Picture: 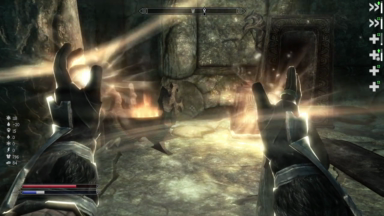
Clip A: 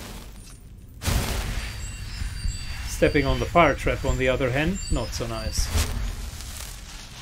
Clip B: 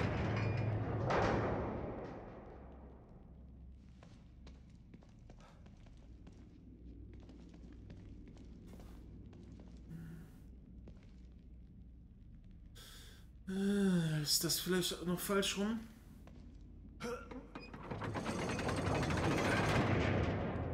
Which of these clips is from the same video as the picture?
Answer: A